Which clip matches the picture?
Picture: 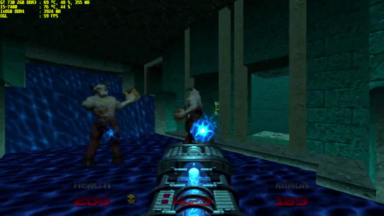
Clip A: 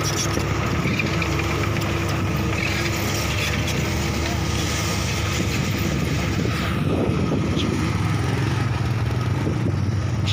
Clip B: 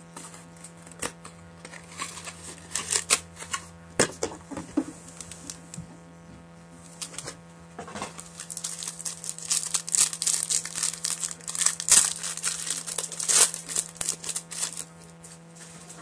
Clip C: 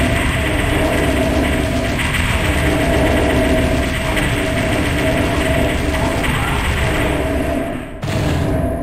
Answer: C